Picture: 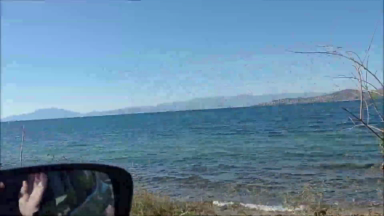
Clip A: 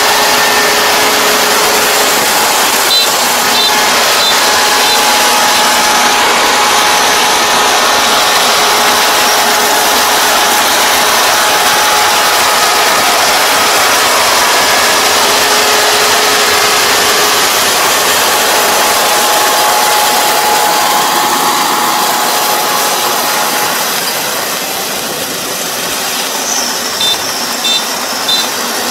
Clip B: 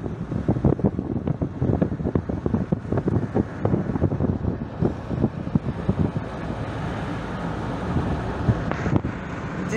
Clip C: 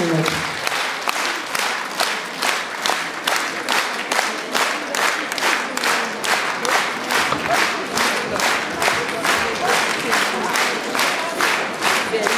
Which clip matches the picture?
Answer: B